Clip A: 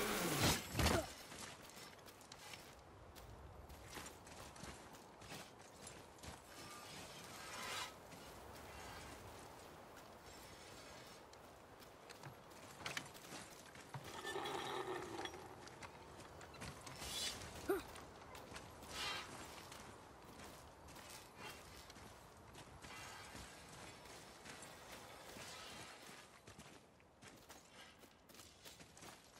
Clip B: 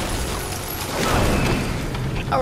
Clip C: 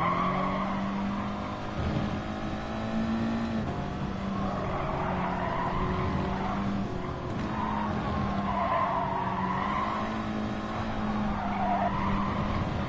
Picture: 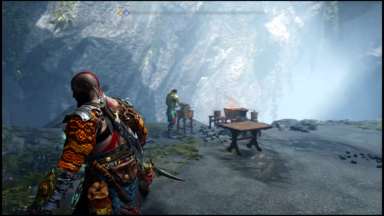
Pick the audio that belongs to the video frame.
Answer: A